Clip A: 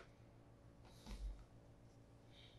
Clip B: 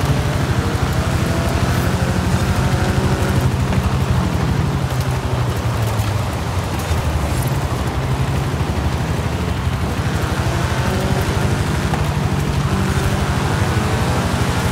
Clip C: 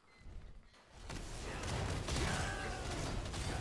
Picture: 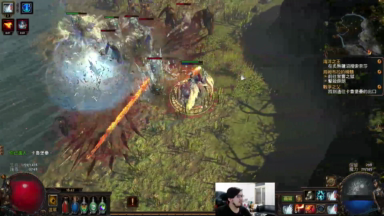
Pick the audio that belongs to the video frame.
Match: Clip C